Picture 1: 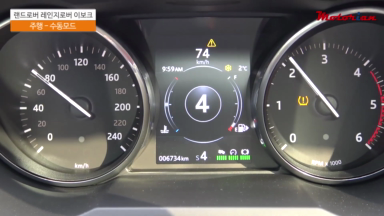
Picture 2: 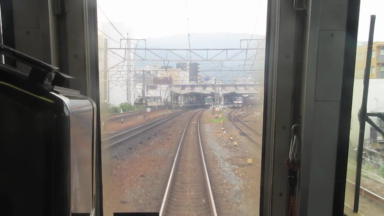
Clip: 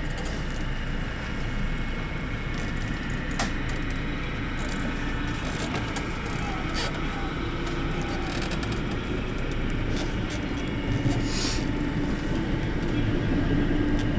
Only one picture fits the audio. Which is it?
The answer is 2